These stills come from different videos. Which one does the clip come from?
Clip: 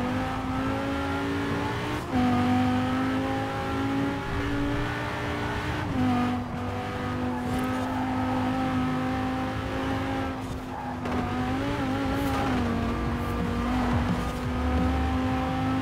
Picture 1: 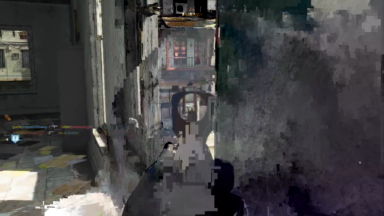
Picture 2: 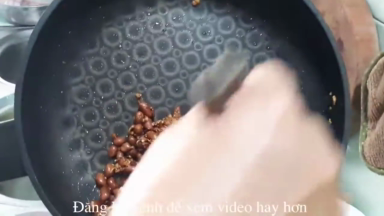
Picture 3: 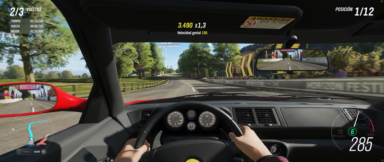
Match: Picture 3